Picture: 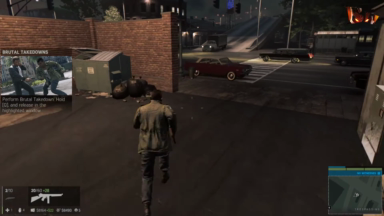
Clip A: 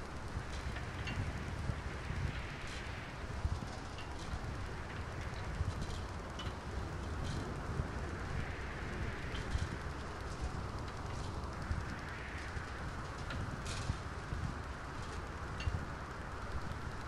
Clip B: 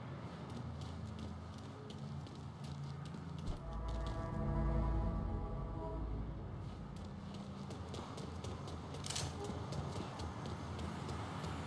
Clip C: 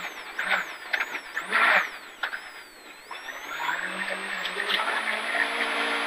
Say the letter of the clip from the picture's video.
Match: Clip B